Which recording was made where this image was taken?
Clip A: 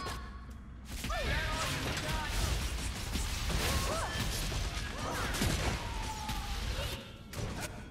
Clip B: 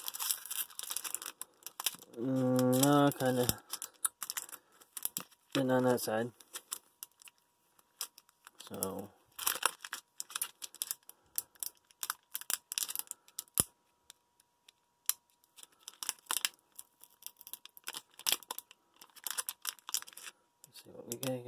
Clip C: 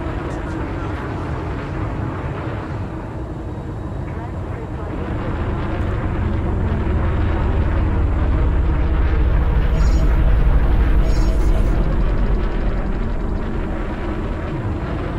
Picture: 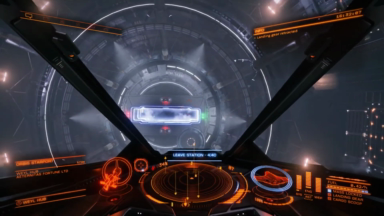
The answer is C